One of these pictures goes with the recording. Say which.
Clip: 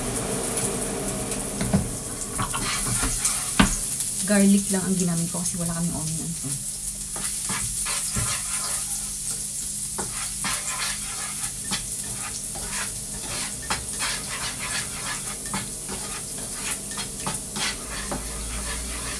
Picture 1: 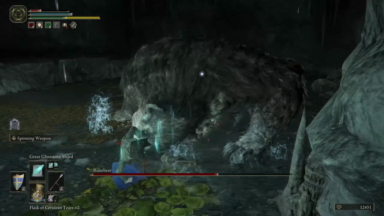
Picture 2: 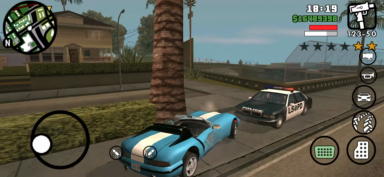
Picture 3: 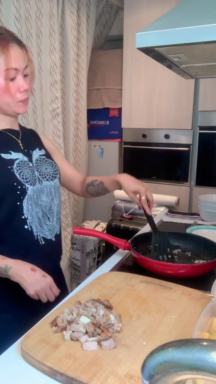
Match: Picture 3